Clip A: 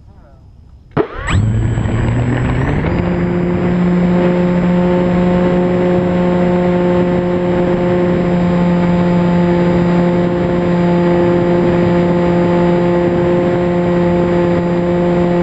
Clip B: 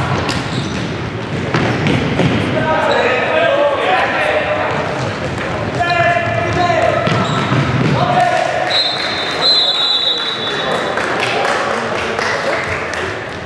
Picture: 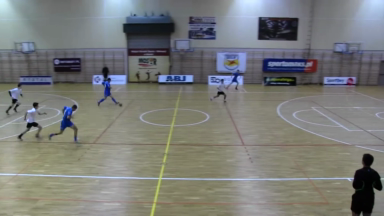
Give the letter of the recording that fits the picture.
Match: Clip B